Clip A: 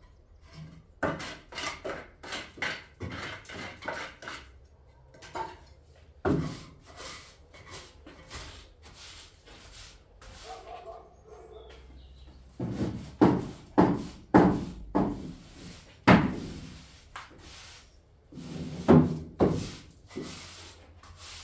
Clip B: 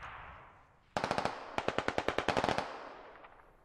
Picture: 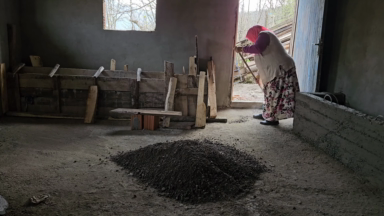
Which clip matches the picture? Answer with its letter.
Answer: A